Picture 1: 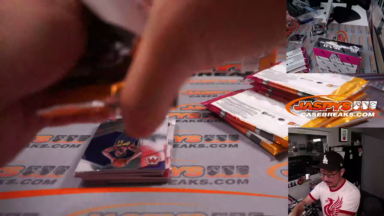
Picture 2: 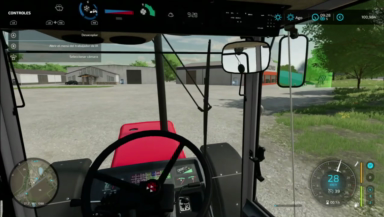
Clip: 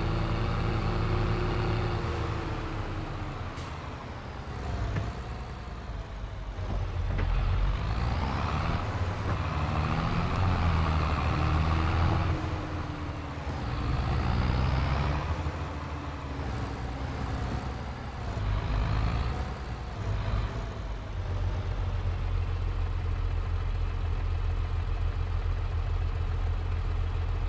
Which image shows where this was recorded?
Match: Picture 2